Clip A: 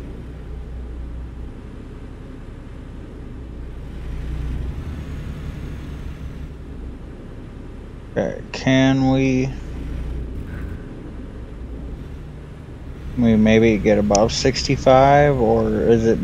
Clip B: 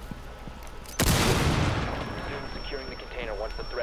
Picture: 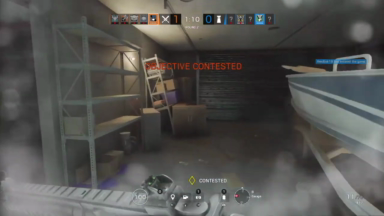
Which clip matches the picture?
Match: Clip B